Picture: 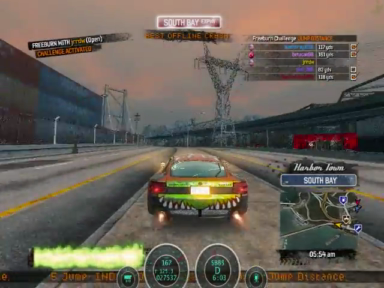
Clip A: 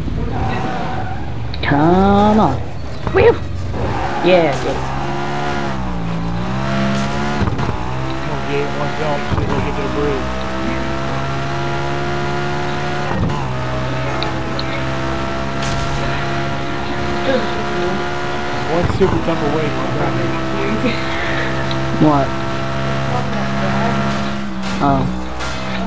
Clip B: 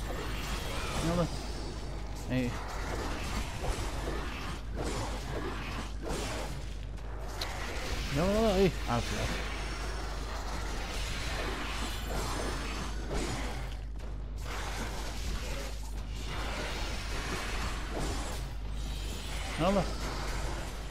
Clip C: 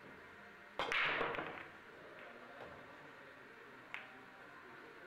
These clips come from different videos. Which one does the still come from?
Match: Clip A